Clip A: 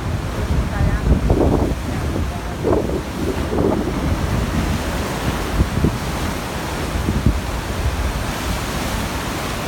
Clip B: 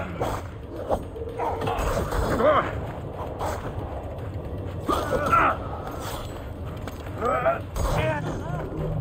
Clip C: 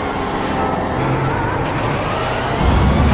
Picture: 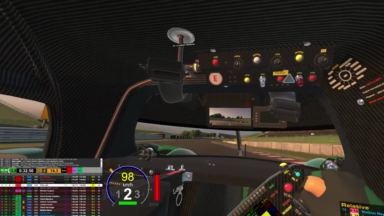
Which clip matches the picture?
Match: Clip C